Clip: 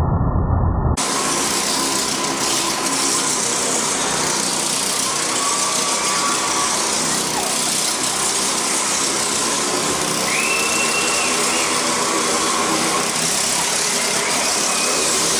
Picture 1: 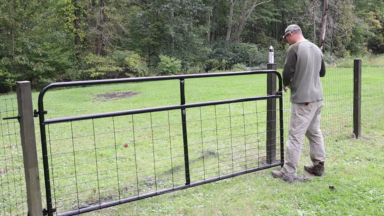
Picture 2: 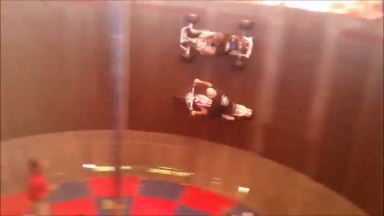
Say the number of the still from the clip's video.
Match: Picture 2